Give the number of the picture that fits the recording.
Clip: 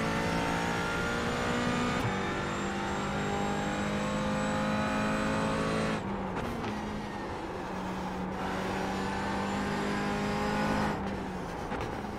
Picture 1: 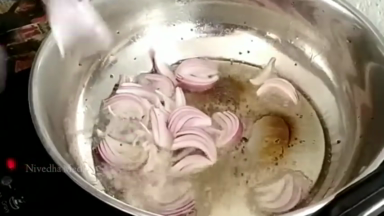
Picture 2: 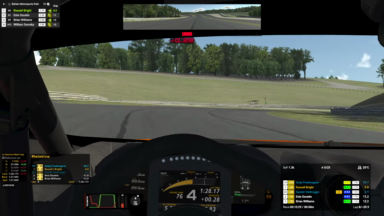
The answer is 2